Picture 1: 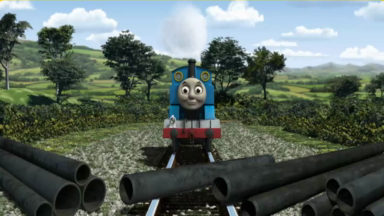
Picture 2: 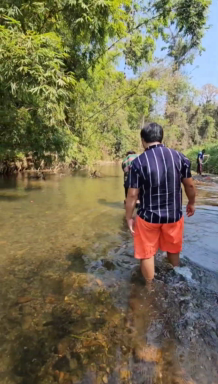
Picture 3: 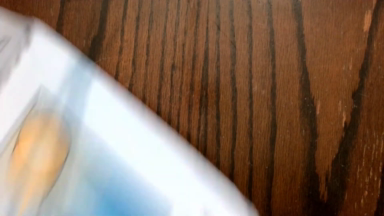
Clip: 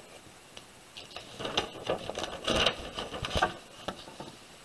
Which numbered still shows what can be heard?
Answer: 3